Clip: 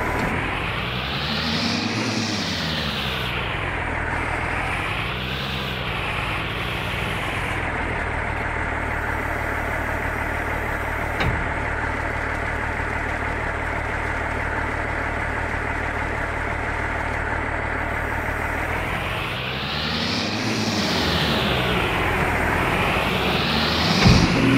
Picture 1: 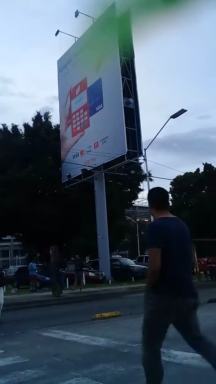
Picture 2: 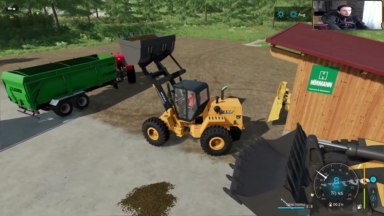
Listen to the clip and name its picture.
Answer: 2